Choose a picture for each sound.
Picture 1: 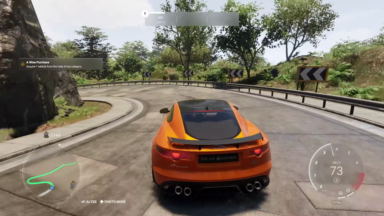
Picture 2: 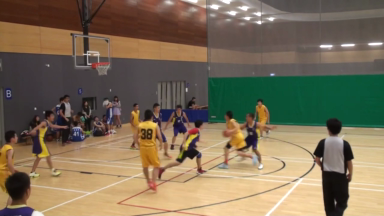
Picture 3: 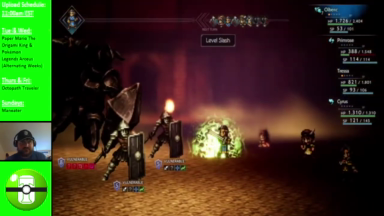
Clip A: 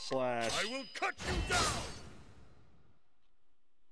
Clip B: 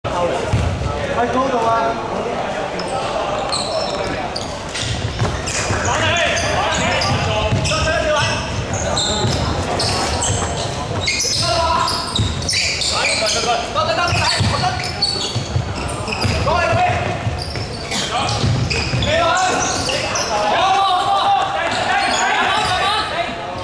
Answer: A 3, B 2